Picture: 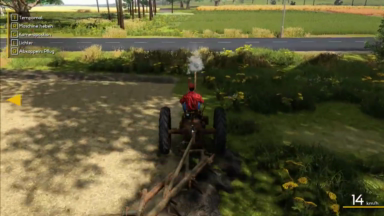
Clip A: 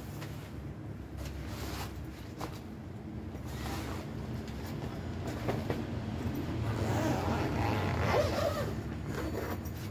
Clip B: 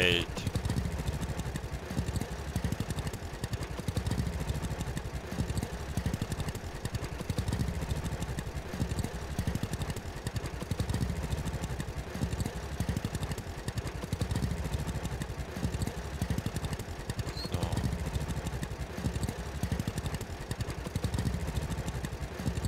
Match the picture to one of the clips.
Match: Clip B